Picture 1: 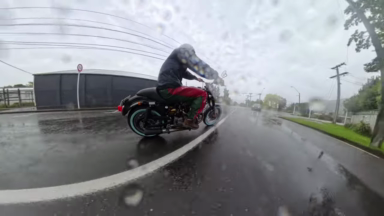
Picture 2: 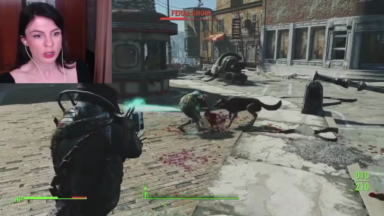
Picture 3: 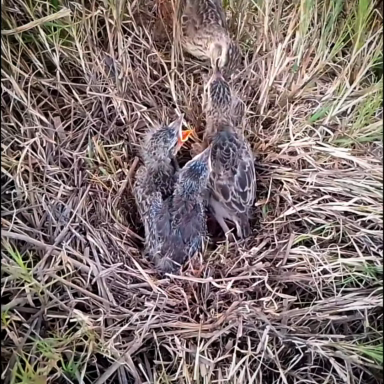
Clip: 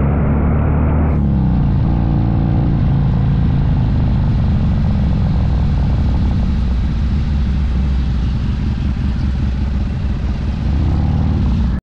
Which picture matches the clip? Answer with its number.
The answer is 1